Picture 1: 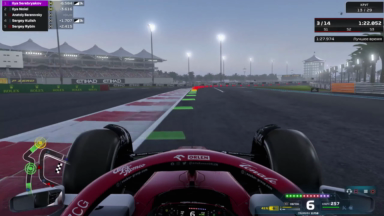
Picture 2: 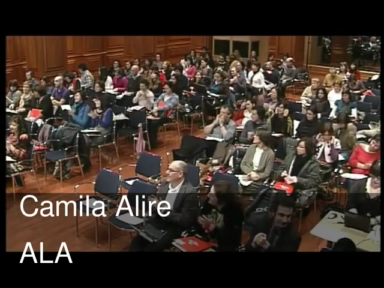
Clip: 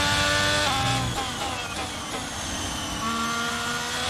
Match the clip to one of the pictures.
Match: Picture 1